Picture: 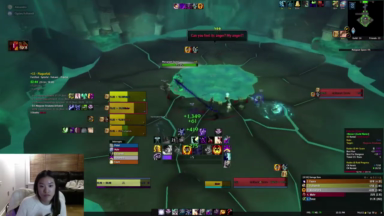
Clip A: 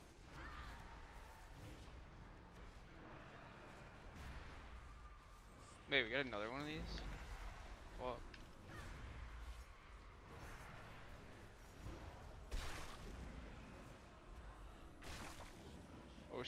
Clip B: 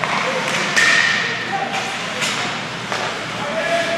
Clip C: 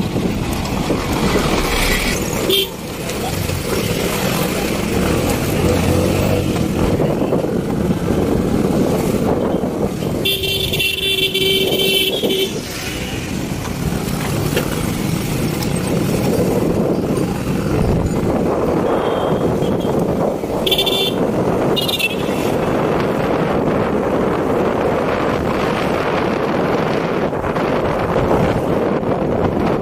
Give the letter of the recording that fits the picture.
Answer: A